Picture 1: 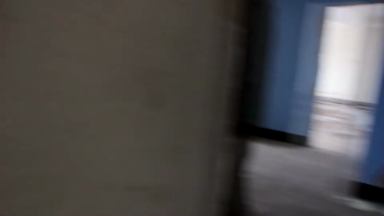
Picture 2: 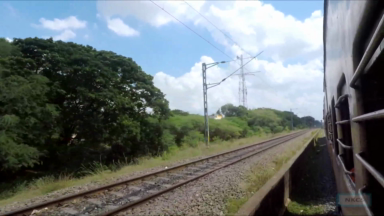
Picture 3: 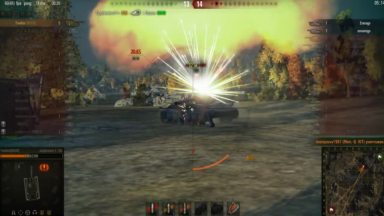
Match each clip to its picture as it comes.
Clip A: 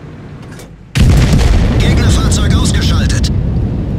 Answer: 3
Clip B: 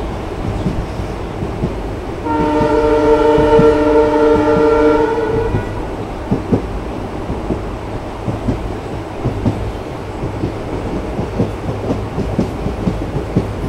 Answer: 2